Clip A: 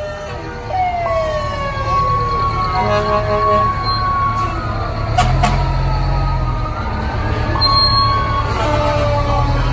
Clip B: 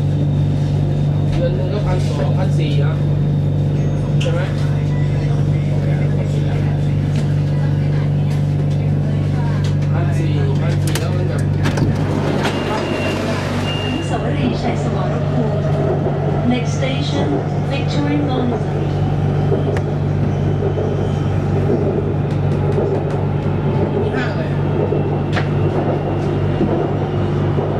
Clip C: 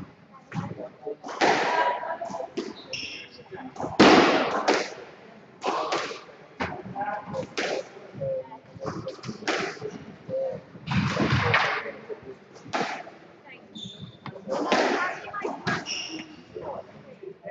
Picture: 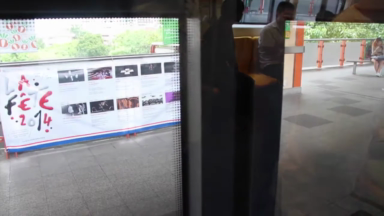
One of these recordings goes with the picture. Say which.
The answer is B